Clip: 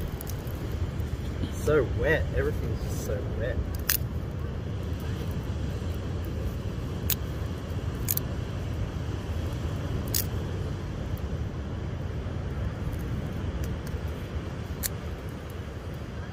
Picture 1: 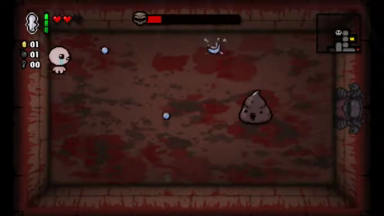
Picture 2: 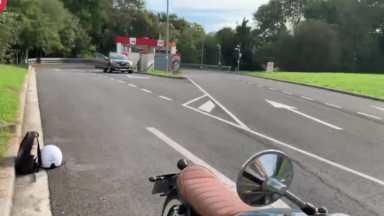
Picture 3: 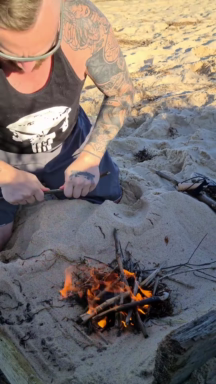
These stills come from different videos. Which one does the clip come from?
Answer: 3